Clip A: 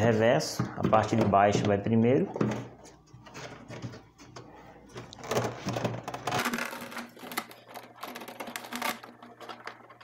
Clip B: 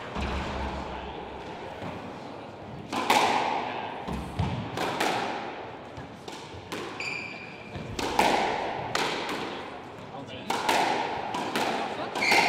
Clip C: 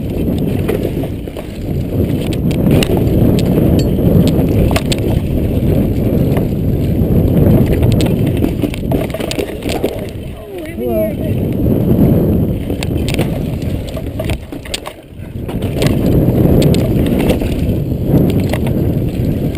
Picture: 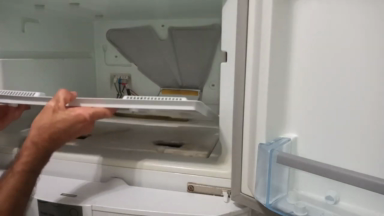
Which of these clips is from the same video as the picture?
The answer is A